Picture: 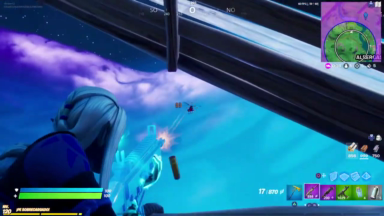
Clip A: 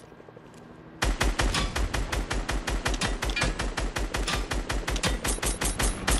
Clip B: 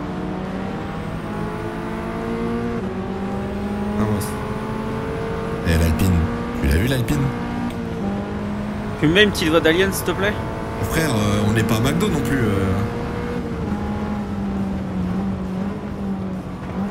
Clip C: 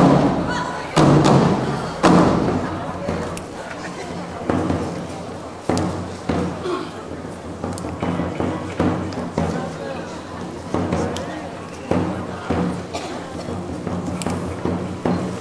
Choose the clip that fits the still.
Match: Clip A